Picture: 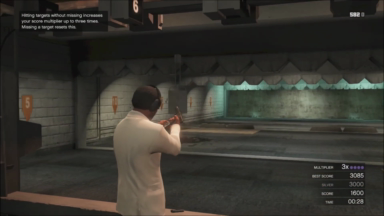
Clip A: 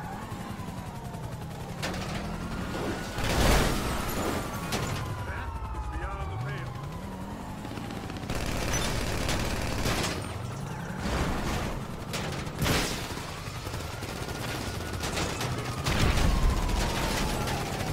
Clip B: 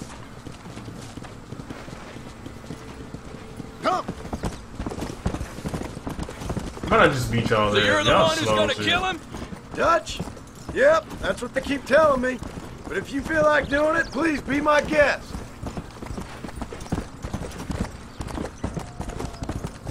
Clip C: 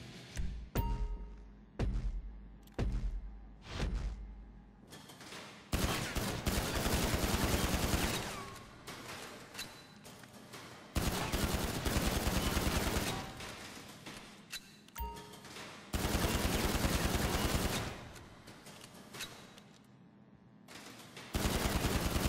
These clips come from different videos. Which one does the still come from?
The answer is C